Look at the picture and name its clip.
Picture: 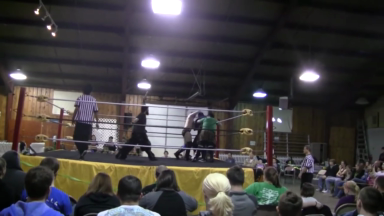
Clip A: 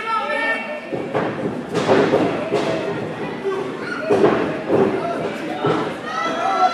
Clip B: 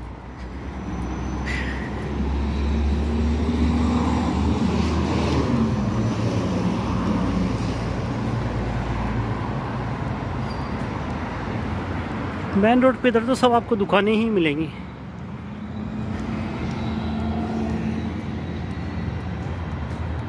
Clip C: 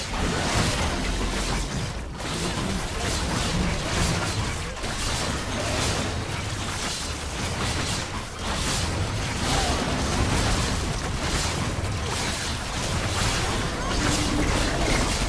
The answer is A